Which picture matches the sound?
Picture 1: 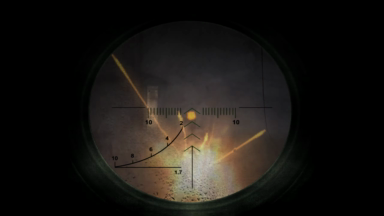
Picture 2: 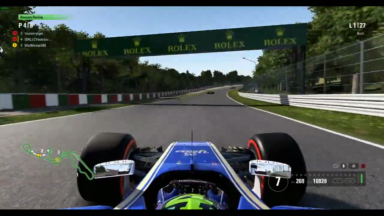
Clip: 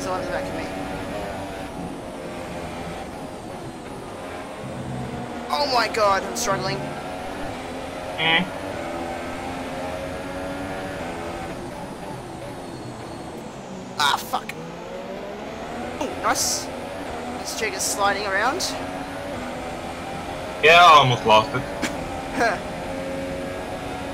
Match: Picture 2